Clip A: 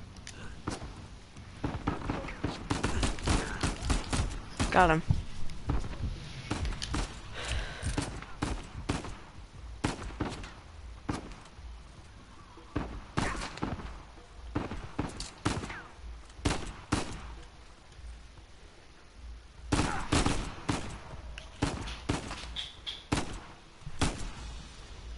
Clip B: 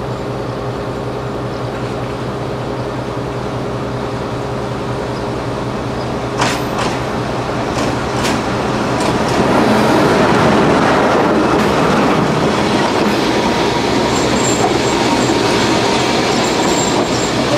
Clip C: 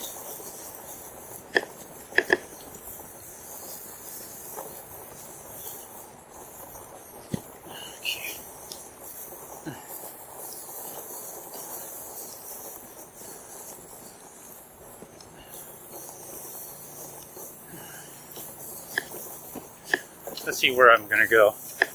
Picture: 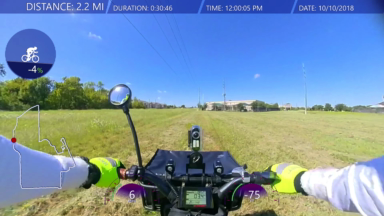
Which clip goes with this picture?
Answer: C